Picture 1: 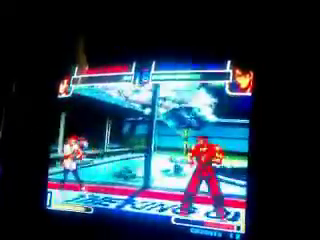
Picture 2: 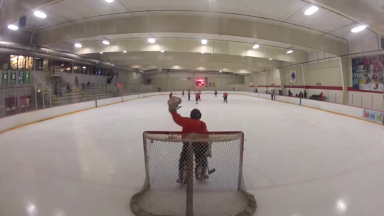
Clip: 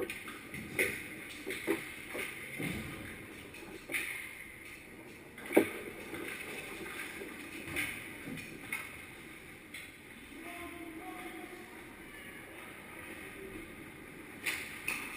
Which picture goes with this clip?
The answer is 2